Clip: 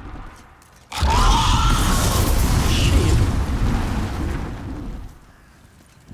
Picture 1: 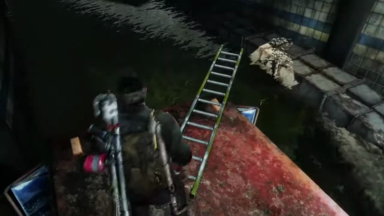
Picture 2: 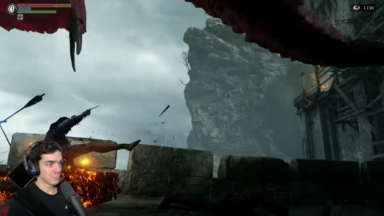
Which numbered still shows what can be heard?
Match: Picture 2